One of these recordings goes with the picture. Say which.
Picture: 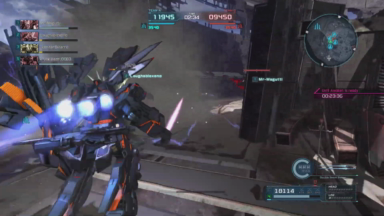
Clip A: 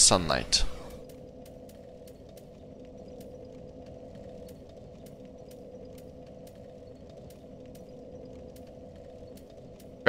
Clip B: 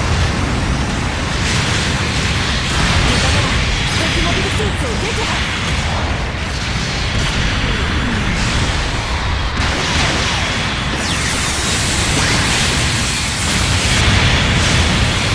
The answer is B